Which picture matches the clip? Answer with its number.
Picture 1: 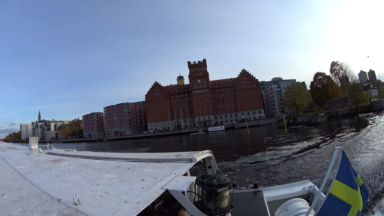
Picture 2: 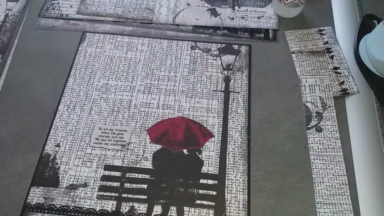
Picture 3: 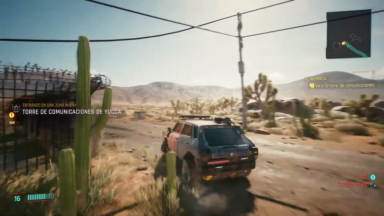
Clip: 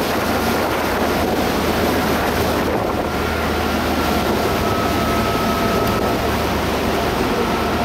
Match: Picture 1